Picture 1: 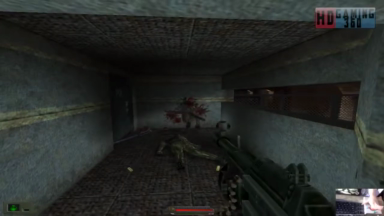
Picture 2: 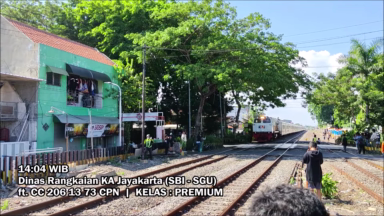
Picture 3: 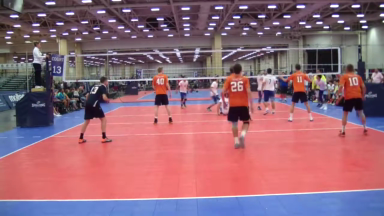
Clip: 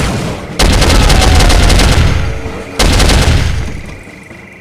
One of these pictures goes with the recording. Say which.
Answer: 1